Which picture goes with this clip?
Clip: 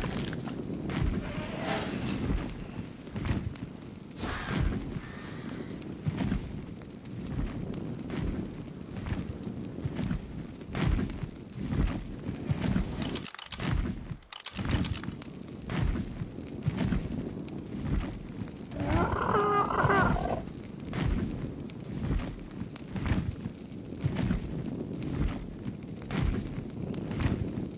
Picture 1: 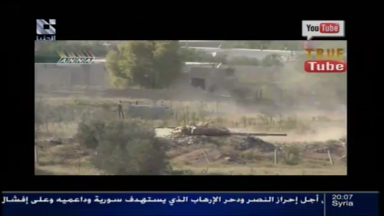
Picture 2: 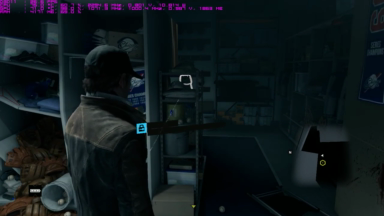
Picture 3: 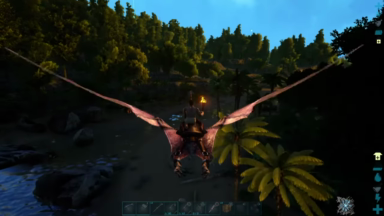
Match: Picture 3